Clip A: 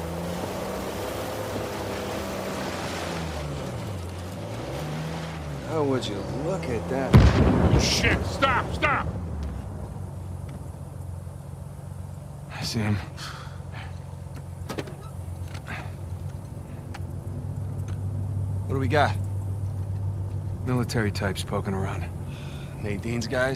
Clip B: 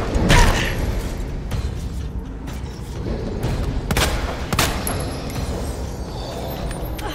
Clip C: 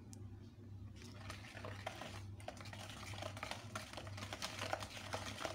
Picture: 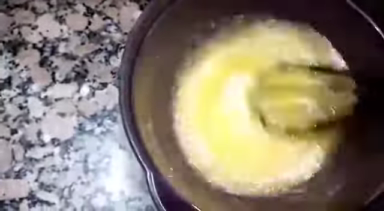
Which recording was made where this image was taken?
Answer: C